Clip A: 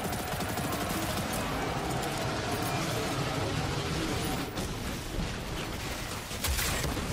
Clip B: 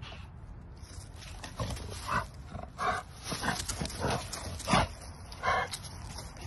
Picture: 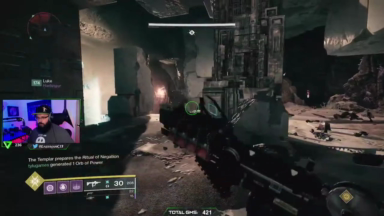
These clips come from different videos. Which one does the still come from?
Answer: A